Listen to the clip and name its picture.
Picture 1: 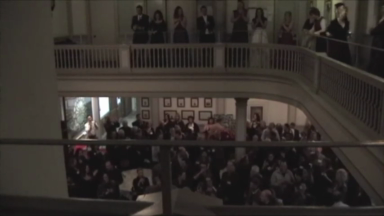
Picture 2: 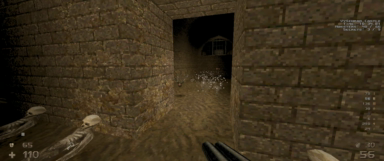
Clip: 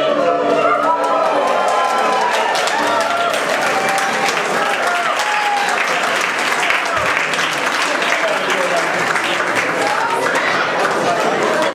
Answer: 1